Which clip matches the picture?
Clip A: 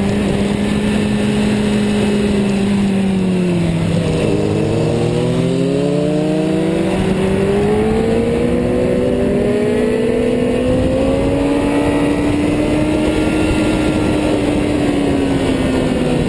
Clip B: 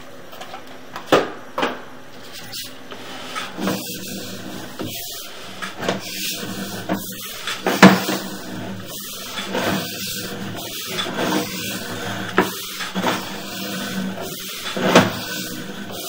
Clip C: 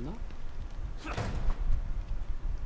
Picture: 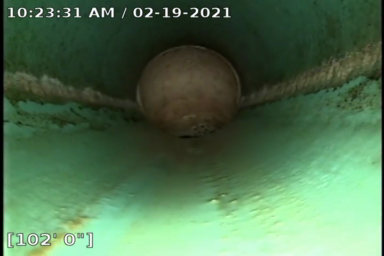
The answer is B